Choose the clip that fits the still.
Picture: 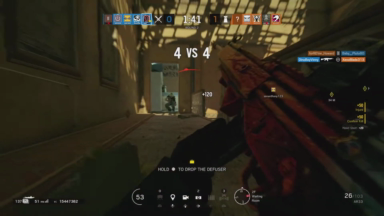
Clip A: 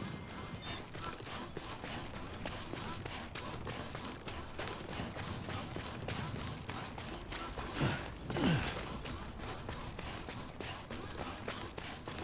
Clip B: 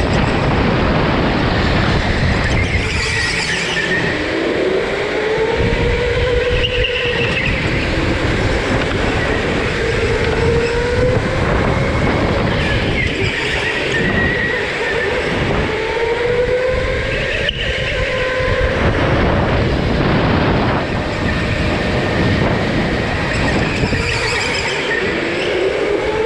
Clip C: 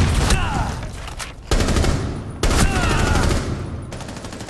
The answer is C